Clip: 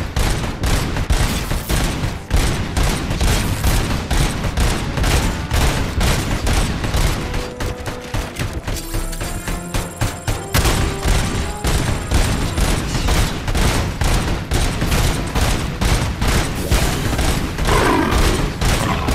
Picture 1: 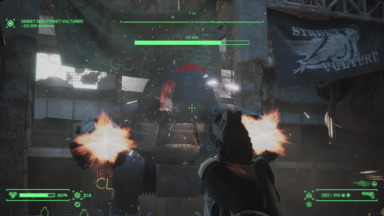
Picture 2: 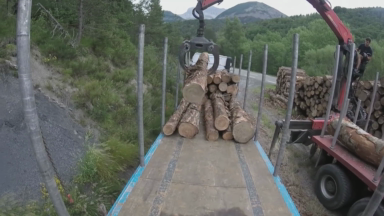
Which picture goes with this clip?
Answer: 1